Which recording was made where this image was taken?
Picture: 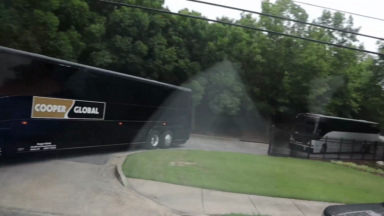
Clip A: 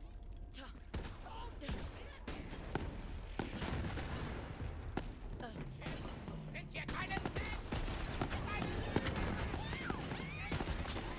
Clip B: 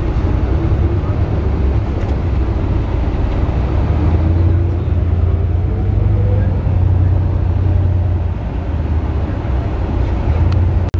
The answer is B